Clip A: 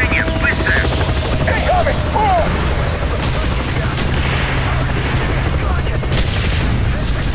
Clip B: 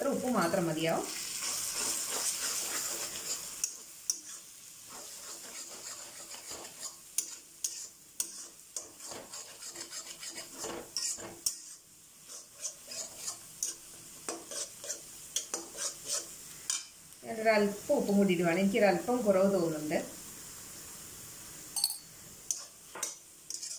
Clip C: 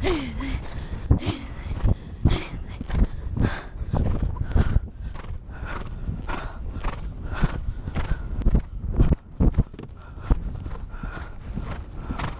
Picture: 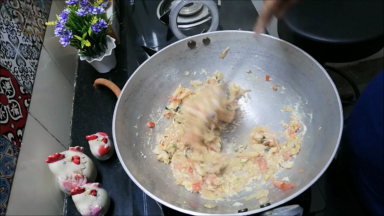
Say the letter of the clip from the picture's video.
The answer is B